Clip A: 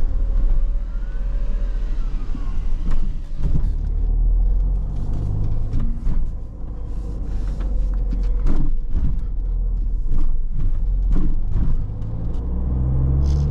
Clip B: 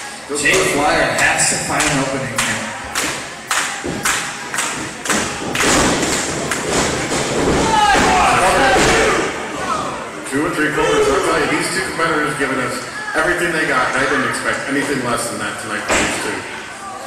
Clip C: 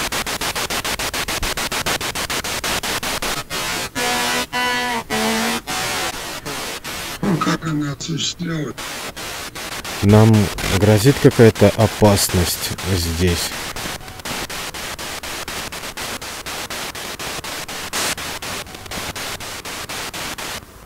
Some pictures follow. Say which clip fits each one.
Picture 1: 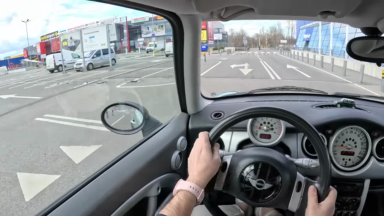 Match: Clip A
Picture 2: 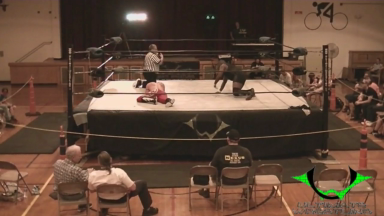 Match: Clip B